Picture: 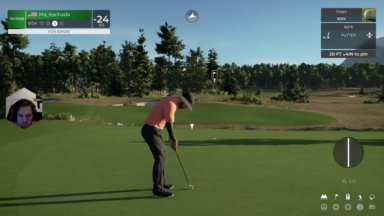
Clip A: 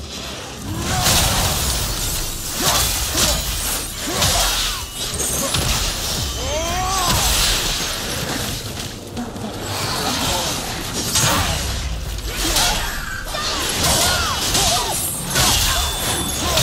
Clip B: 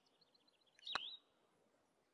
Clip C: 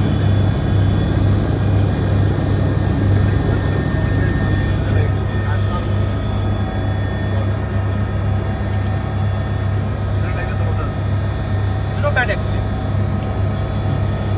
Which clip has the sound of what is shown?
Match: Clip B